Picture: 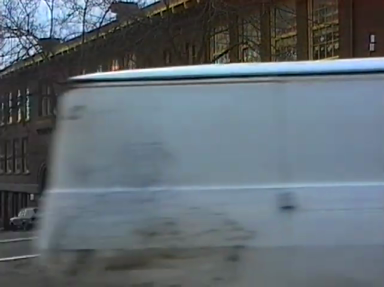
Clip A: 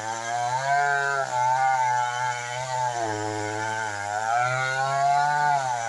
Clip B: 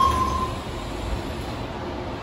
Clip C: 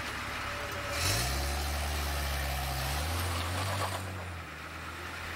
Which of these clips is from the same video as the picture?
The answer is C